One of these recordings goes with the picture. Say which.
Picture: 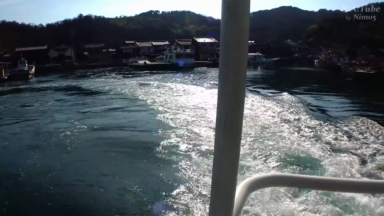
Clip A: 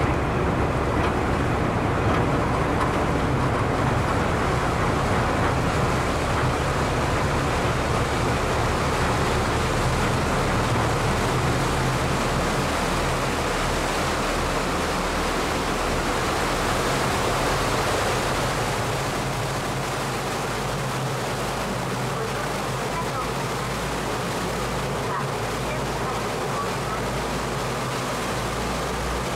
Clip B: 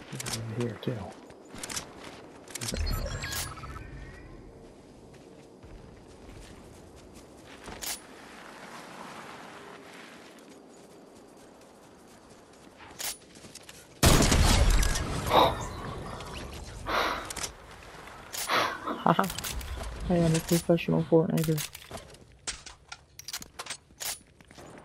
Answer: A